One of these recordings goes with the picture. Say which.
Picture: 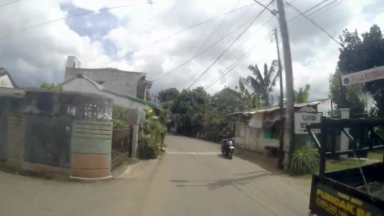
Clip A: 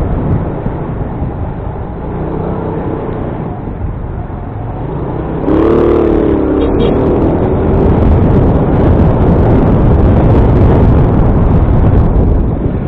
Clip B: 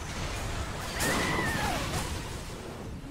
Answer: A